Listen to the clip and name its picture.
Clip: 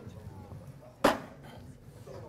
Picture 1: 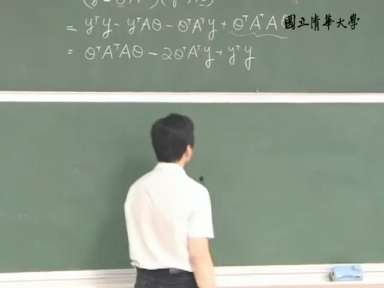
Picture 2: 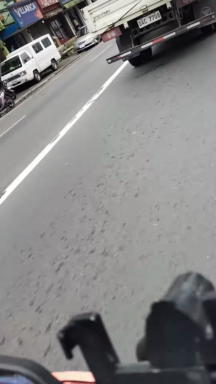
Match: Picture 1